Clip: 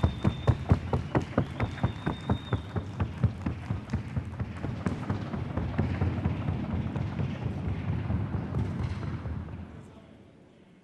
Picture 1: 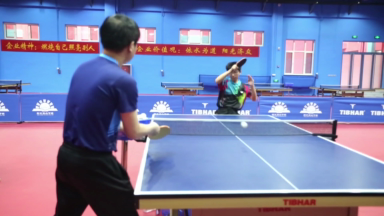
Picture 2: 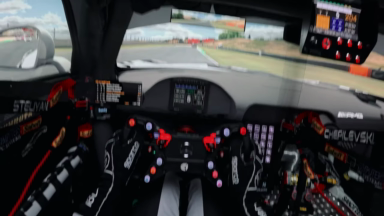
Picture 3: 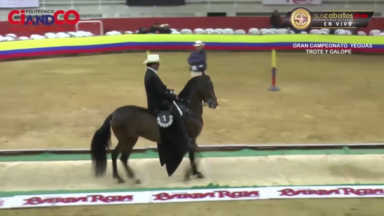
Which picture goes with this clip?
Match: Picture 3